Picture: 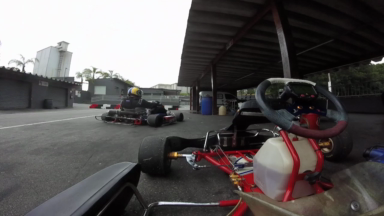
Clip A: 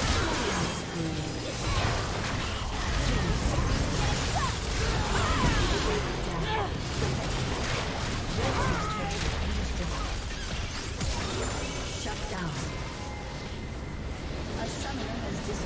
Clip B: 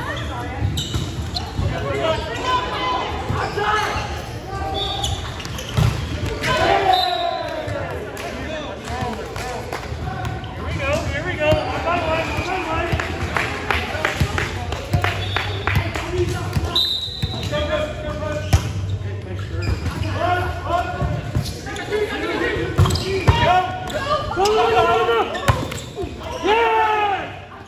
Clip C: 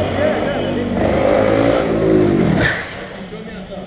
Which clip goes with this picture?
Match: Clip C